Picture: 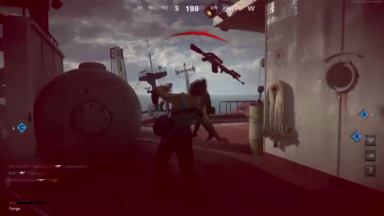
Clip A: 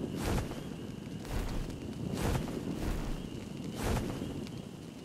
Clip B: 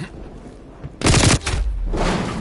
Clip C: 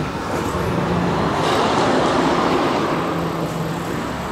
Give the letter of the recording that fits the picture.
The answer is B